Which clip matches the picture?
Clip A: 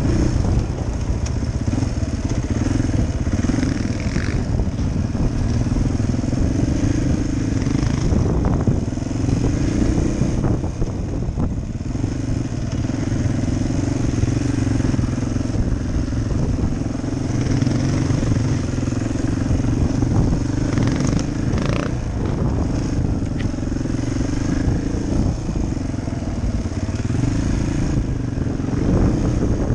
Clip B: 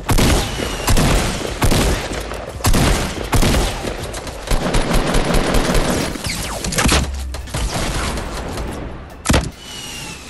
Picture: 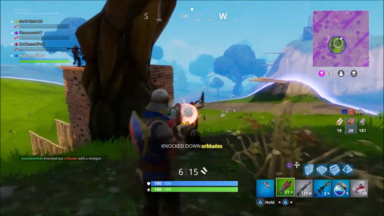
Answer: B